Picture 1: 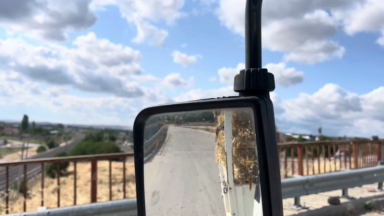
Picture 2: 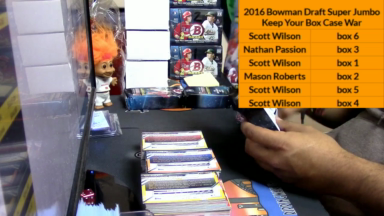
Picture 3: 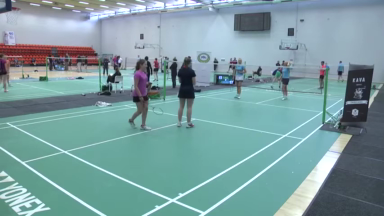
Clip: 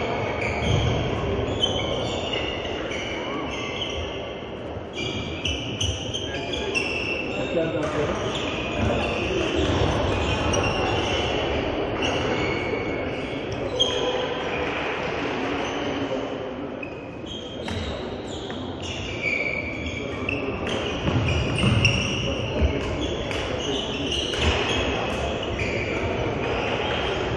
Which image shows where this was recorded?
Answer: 3